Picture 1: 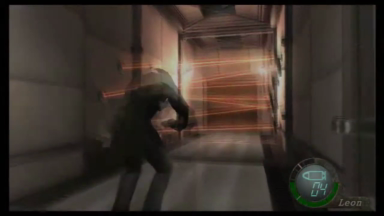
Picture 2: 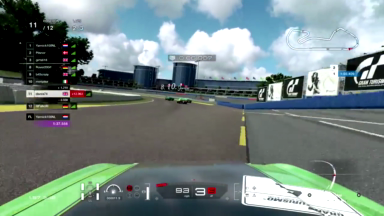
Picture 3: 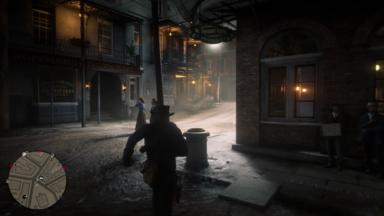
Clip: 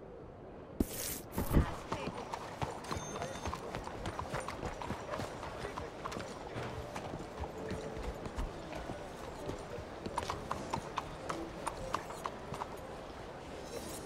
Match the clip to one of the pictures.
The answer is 3